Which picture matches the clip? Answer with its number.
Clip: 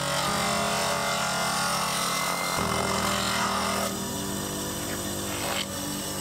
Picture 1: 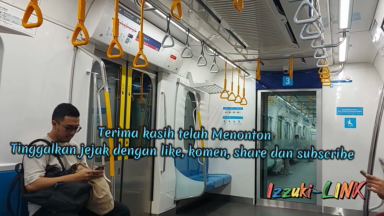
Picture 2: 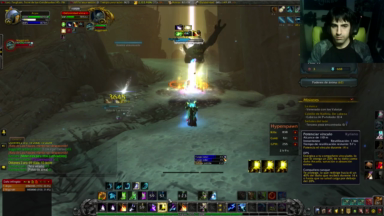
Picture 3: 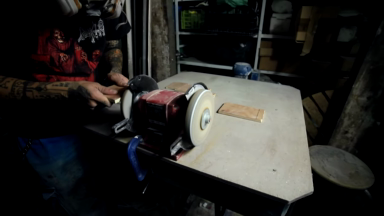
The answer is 3